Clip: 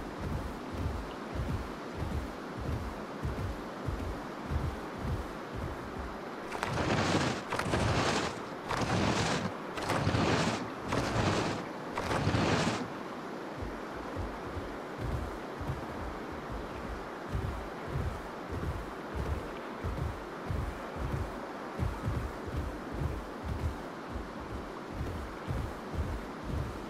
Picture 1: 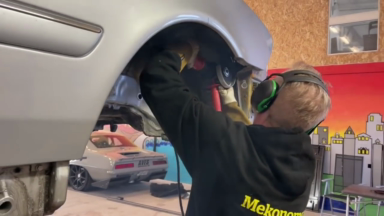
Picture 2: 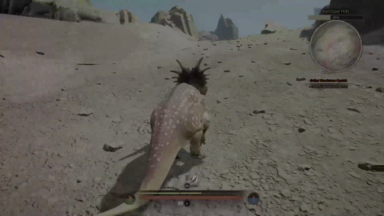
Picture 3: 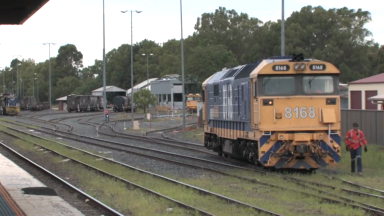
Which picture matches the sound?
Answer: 2